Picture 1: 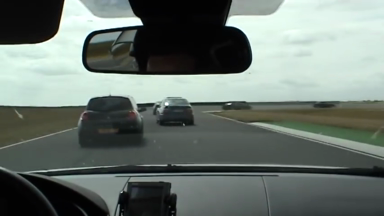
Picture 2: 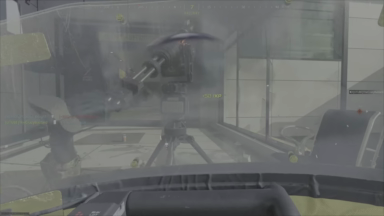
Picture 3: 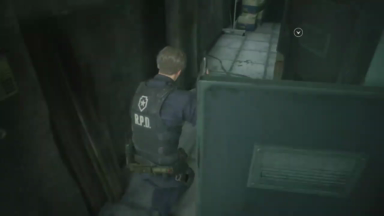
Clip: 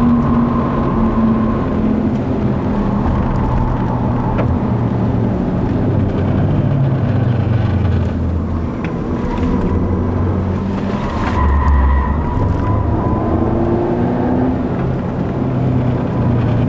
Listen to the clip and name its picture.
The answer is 1